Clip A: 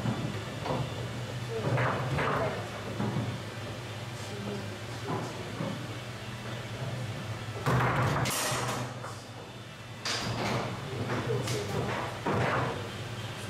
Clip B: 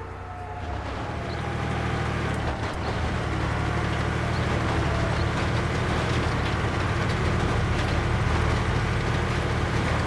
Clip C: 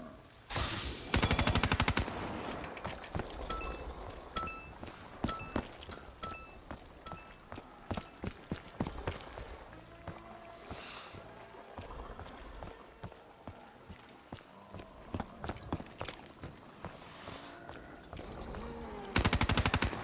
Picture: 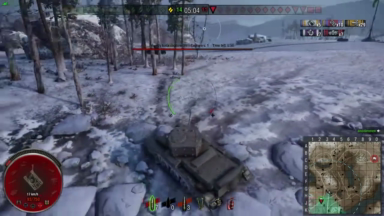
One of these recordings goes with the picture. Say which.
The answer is B